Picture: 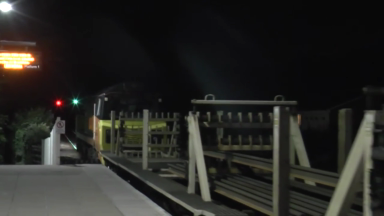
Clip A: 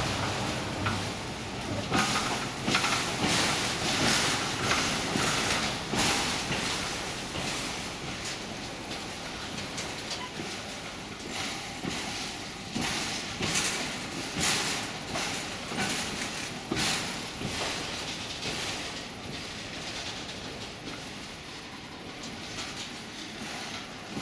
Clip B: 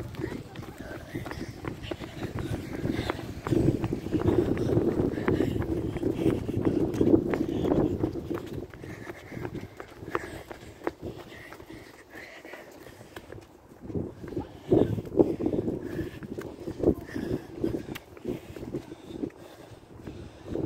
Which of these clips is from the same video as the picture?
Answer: A